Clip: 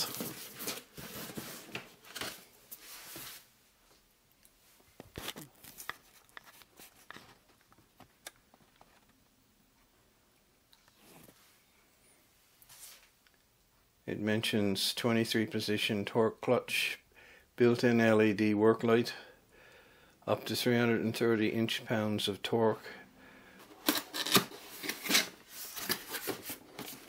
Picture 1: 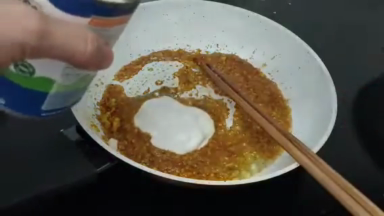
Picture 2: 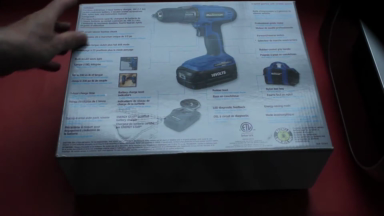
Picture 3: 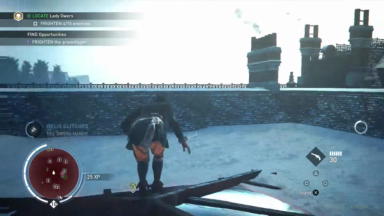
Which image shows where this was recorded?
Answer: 2